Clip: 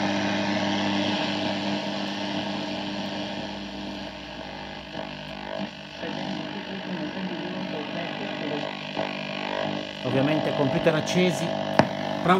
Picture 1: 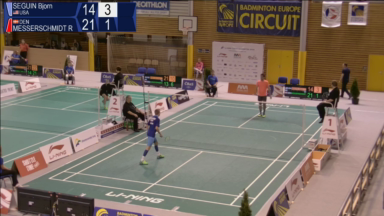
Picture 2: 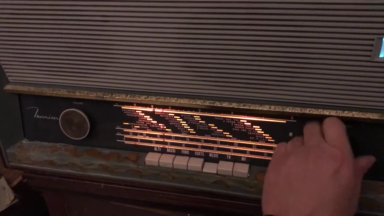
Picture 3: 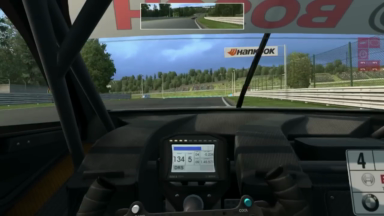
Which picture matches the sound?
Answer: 2